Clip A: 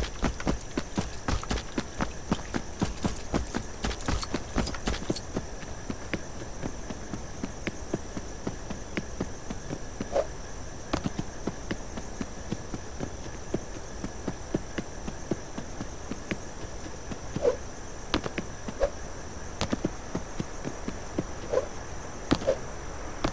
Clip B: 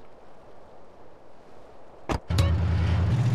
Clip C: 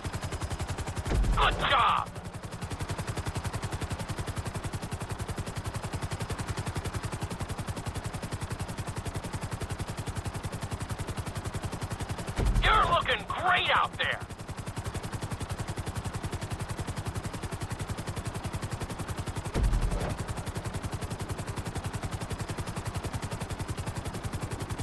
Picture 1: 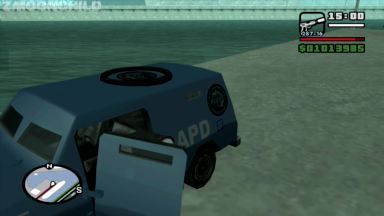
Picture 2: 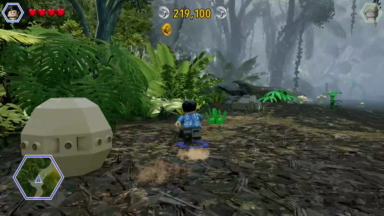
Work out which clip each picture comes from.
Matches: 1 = B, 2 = A